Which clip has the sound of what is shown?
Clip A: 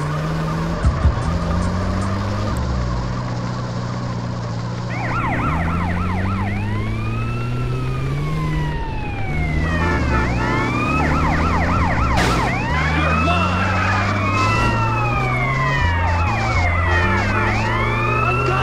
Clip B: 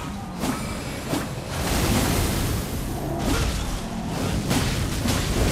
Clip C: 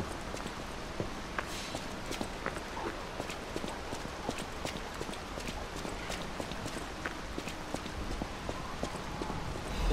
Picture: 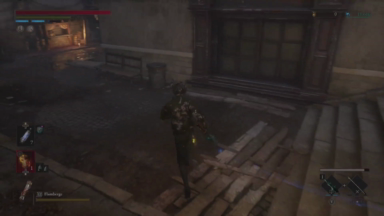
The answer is C